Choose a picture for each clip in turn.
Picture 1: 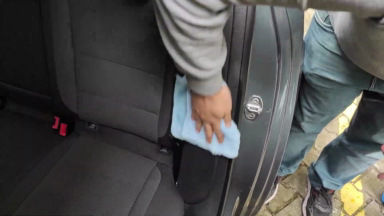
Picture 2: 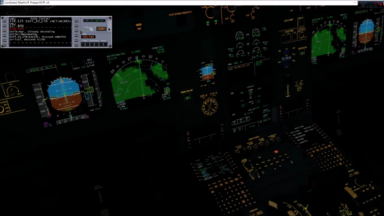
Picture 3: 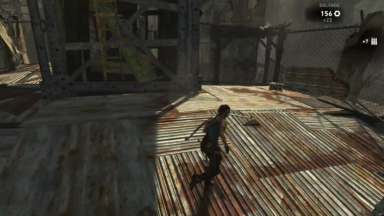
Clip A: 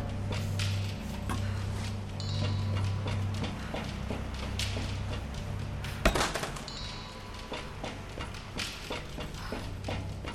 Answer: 3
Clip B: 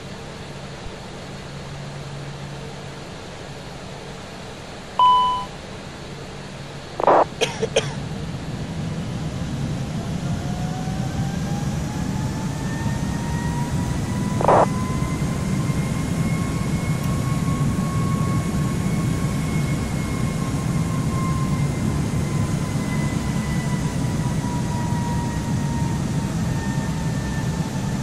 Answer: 2